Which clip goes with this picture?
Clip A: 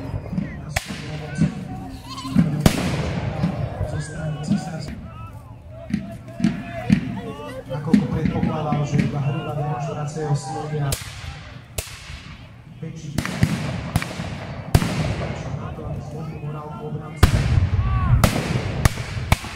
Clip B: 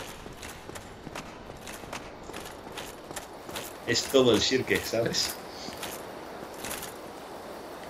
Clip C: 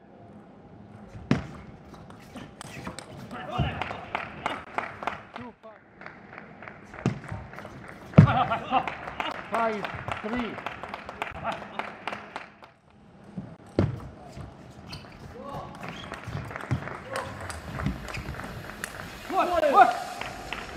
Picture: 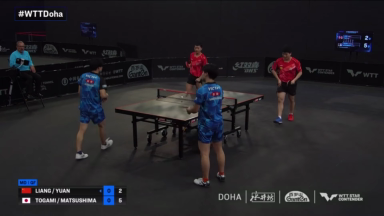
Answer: C